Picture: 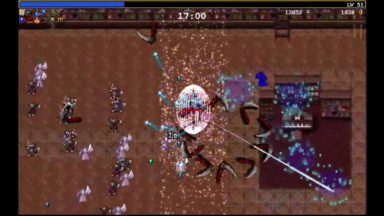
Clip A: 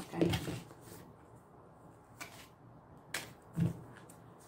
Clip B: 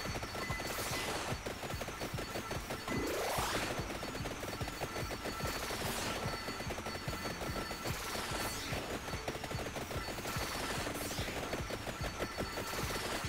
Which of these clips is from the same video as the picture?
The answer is B